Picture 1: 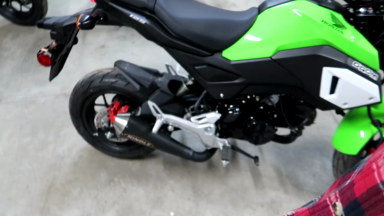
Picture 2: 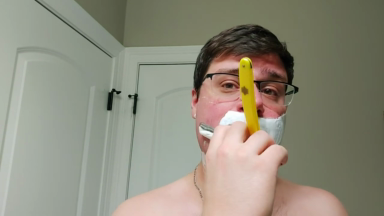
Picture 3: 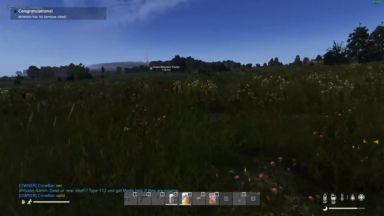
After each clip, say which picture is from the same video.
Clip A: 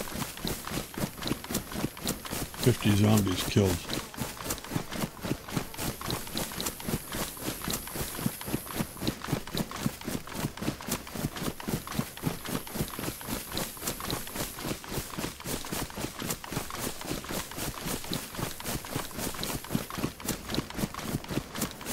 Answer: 3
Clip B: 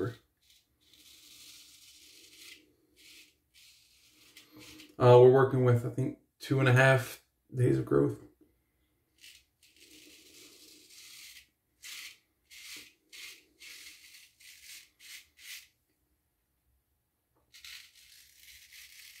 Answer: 2